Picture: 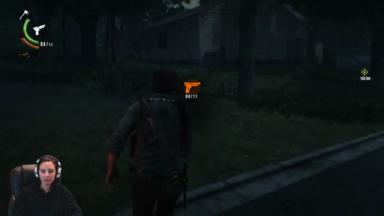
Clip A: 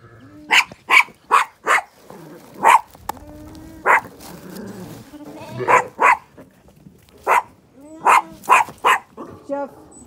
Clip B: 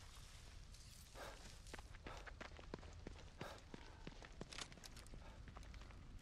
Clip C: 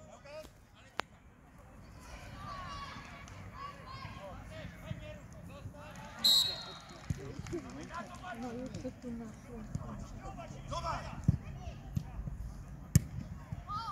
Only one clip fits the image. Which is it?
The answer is B